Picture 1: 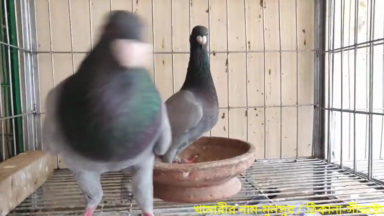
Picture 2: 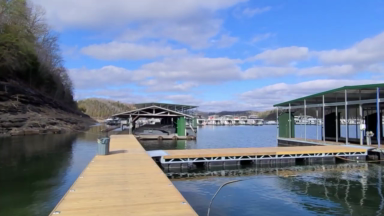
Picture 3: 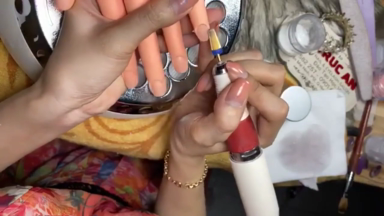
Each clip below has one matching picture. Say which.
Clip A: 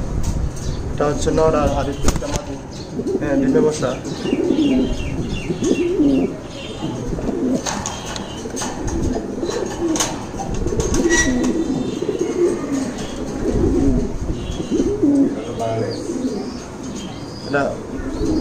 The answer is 1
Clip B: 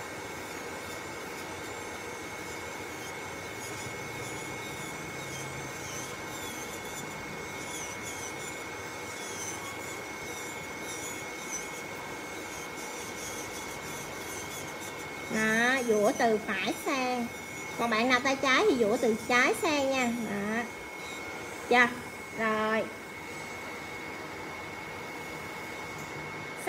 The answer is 3